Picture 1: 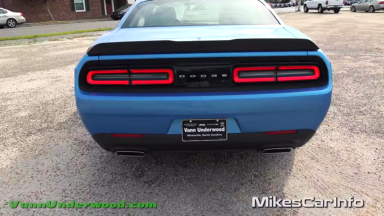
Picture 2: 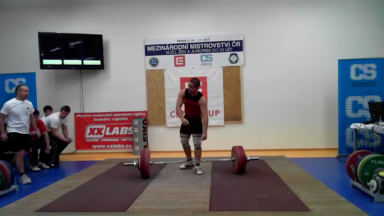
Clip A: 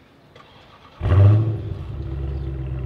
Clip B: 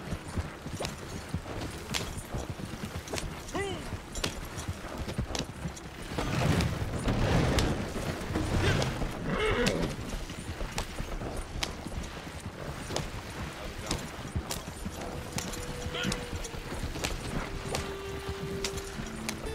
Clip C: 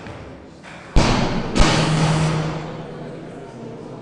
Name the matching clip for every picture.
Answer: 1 A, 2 C